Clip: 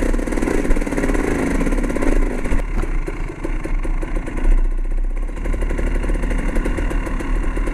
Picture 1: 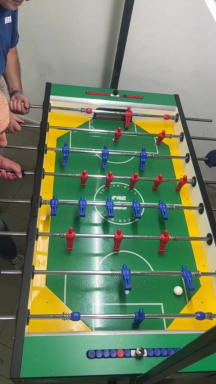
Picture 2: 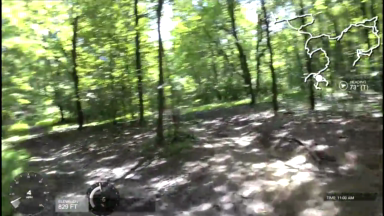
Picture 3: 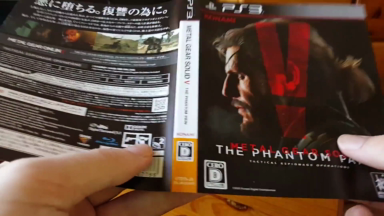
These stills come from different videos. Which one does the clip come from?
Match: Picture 2